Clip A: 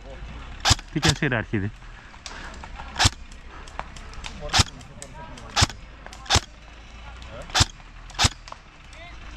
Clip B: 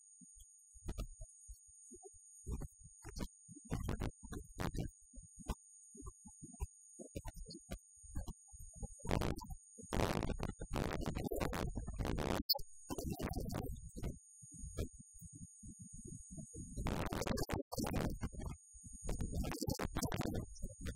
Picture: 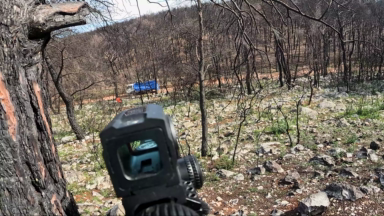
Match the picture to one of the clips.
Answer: A